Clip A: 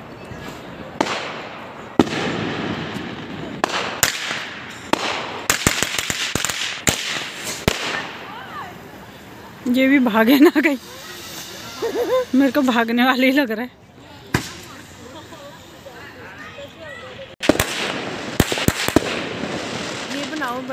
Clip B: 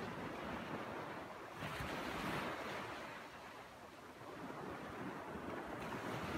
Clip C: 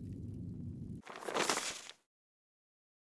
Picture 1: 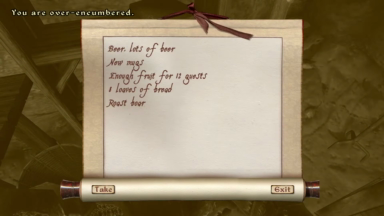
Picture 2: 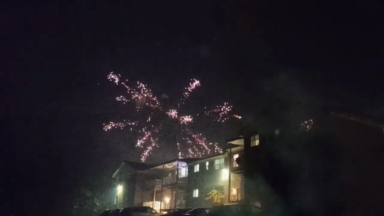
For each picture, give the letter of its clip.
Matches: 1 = C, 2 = A